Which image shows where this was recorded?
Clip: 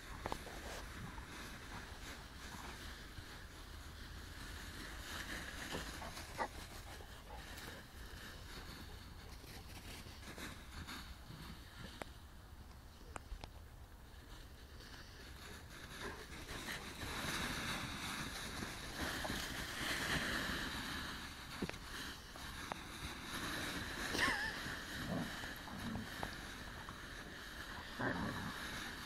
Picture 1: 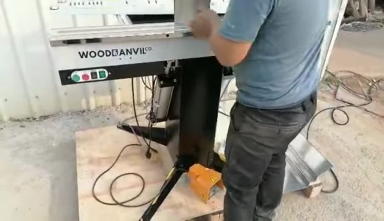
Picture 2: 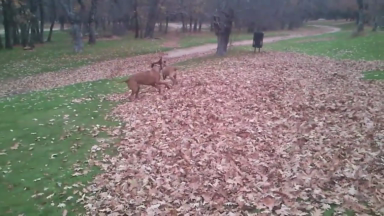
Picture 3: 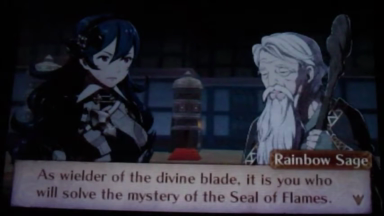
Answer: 2